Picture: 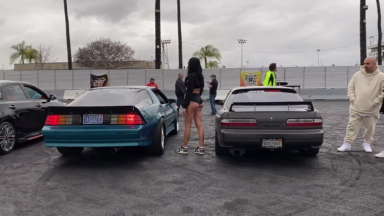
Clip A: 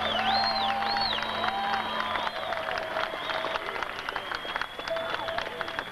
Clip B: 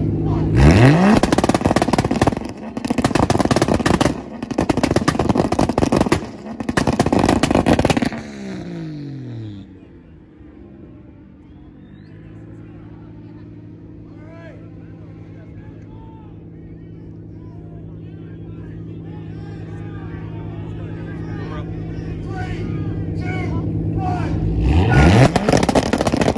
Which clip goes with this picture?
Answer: B